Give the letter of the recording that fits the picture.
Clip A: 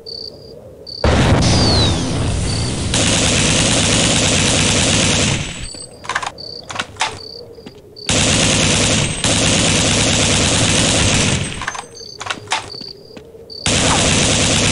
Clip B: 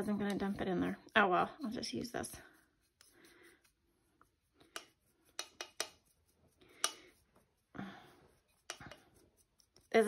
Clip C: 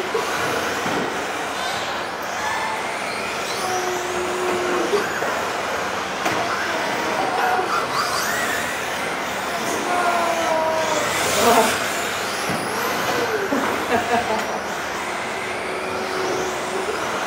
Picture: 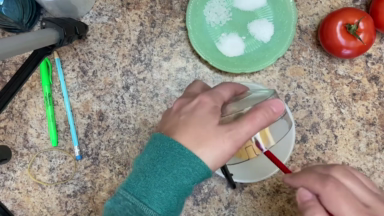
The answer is B